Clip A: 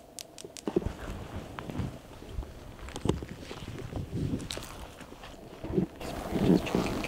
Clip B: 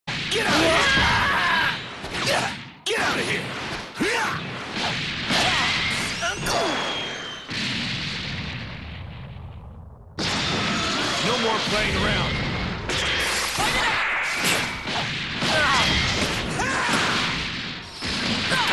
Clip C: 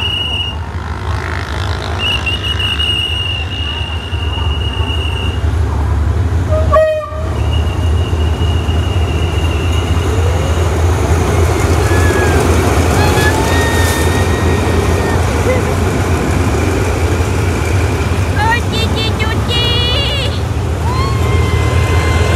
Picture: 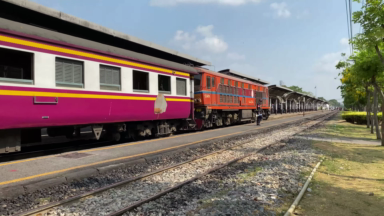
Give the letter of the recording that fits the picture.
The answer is C